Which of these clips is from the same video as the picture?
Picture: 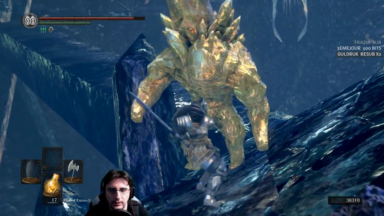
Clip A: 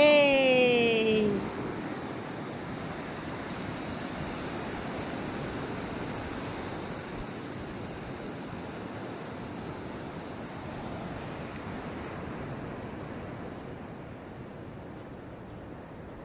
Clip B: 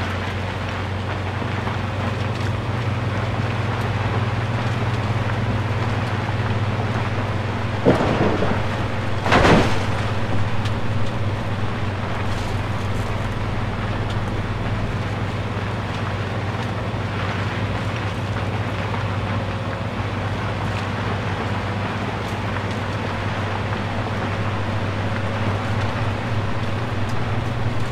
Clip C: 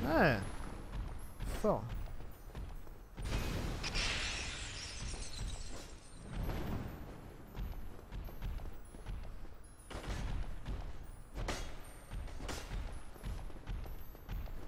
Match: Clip C